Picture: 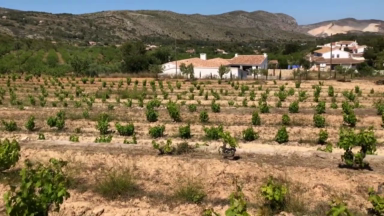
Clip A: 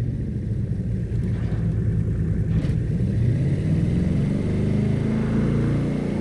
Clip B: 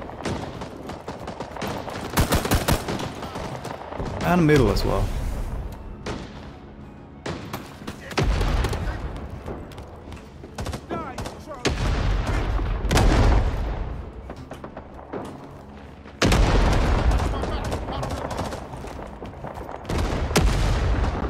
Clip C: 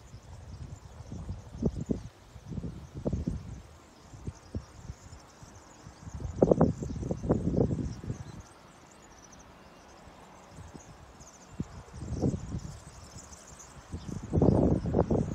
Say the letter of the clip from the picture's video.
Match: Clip C